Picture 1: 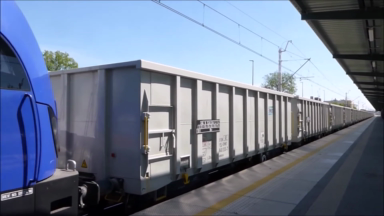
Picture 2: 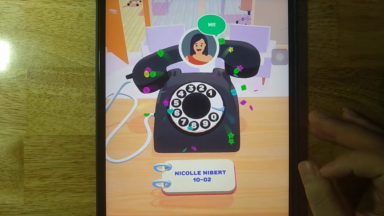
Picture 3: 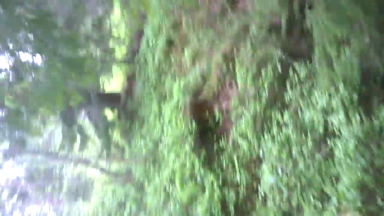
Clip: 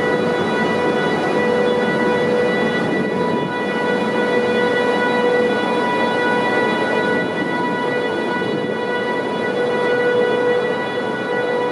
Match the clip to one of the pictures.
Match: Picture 1